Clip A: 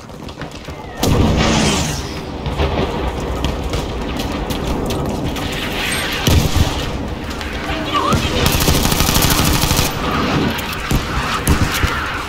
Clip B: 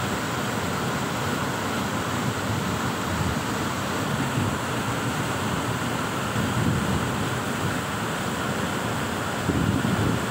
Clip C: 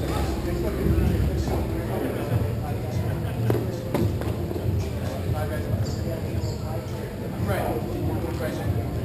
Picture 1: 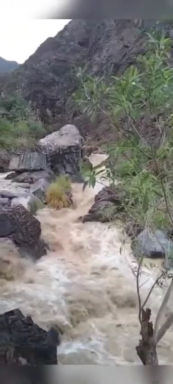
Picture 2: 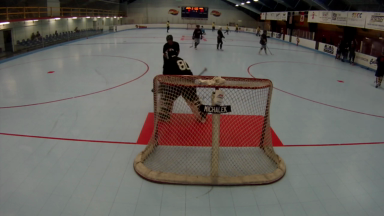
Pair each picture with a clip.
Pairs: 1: B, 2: C